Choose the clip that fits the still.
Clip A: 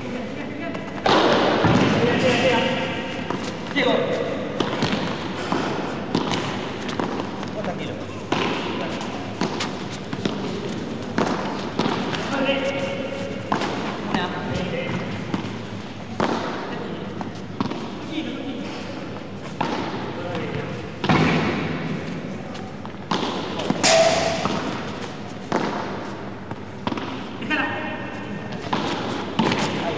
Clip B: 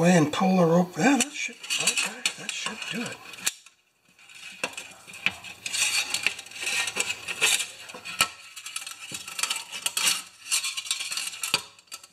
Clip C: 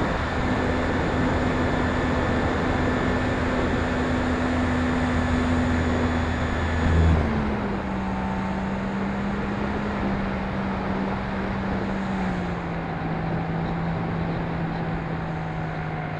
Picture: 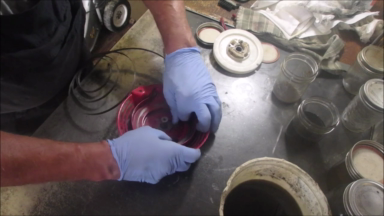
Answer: B